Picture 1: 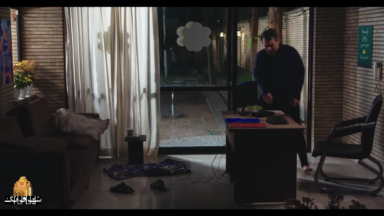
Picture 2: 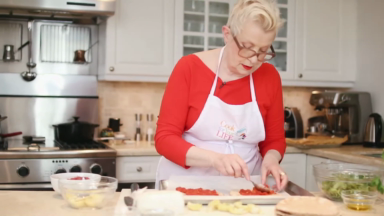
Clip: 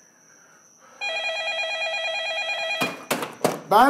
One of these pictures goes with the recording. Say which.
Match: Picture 1